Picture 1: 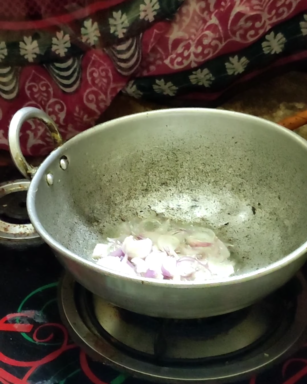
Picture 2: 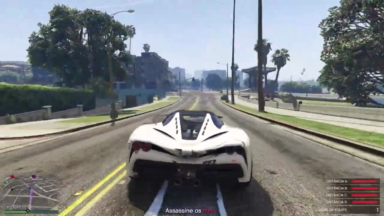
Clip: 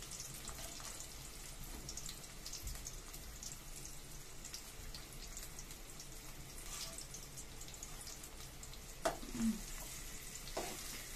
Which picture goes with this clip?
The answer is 1